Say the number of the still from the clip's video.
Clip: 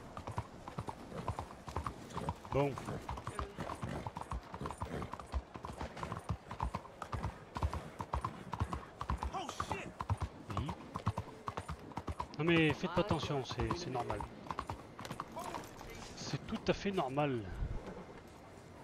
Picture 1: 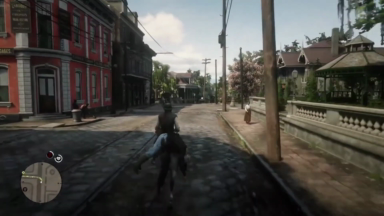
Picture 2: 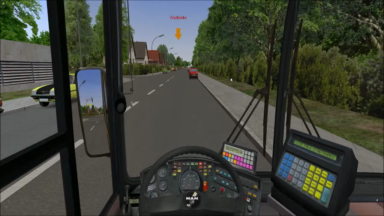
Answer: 1